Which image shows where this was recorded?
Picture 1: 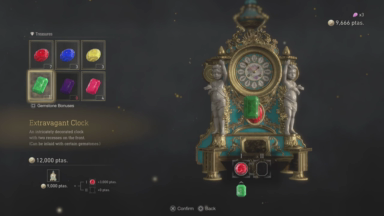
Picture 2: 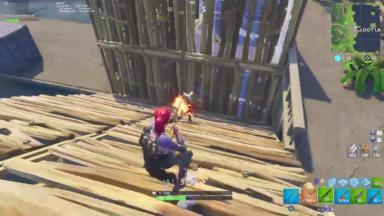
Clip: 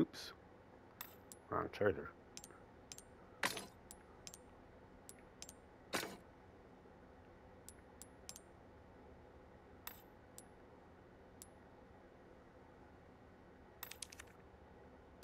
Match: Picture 1